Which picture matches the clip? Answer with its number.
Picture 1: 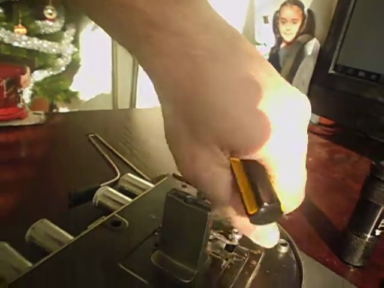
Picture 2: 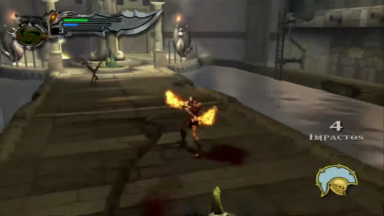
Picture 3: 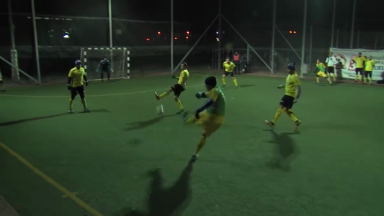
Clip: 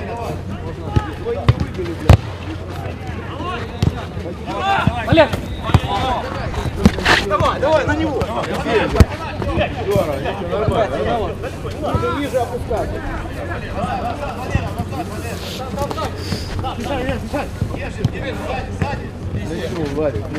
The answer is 3